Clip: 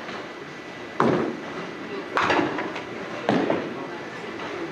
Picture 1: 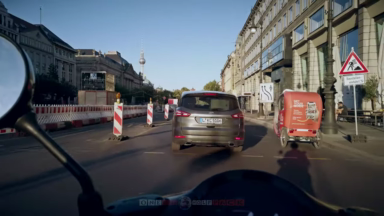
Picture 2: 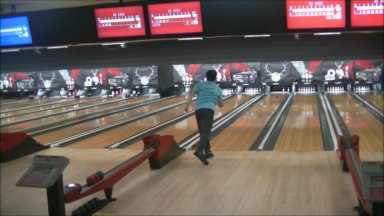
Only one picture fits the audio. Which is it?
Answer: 2